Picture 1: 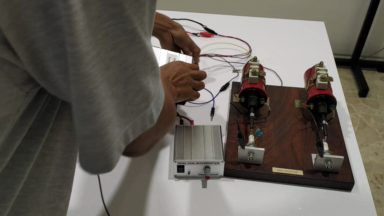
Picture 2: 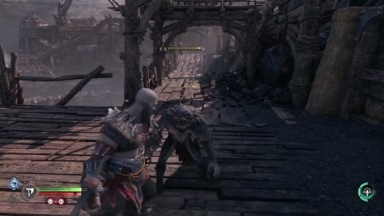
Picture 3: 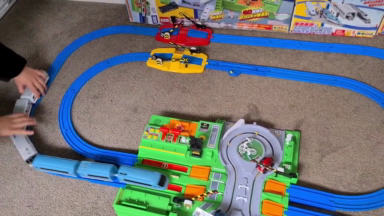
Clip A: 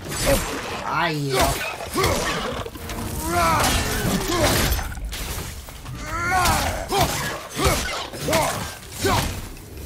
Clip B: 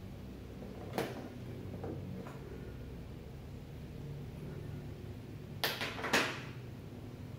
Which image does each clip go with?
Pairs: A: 2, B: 1